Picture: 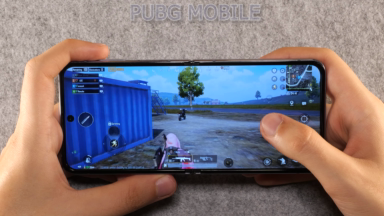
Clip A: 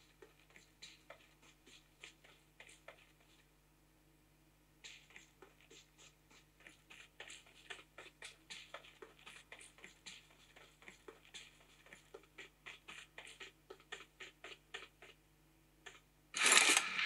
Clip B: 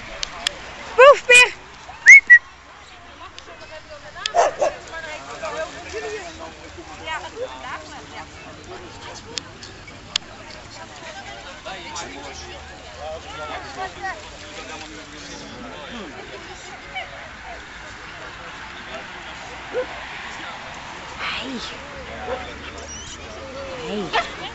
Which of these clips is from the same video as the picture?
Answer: A